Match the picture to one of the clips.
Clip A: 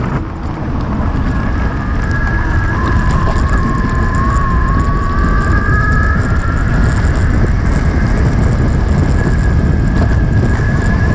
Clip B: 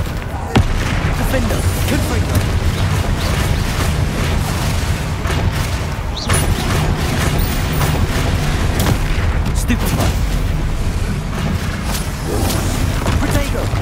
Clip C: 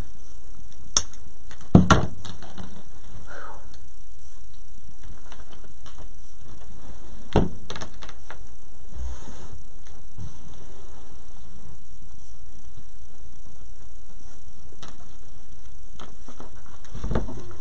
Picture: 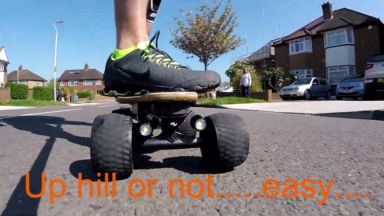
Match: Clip A